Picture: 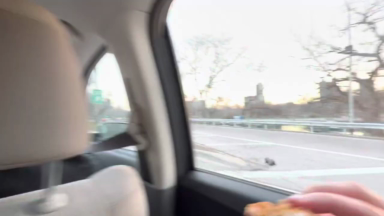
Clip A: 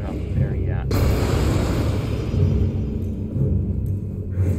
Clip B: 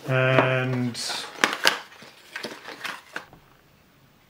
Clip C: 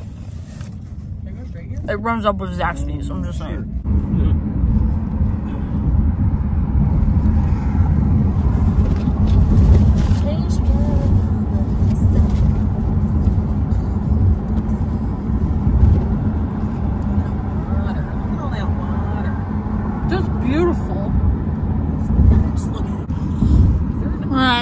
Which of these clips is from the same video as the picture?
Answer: C